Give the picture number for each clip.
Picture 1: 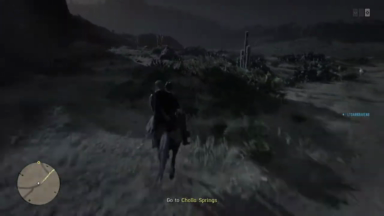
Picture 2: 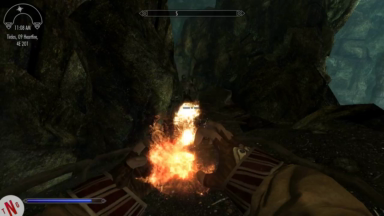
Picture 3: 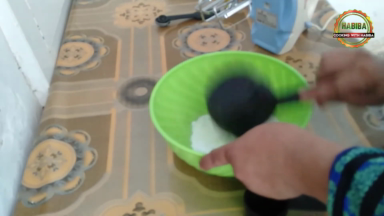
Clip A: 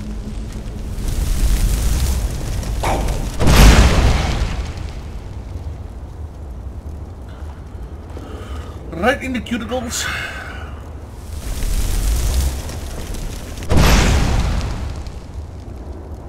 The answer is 2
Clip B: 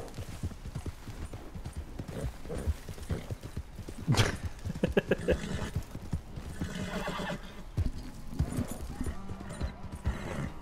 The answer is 1